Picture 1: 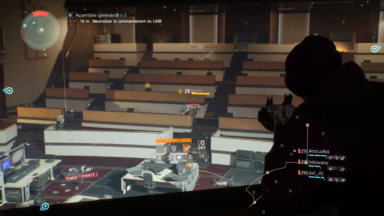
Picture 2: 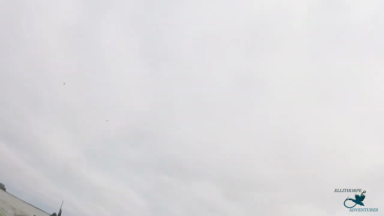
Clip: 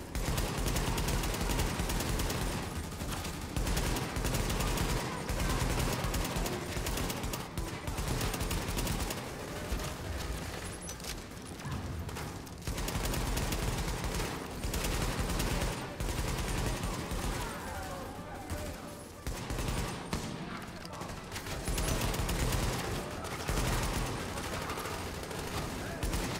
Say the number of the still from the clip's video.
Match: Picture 1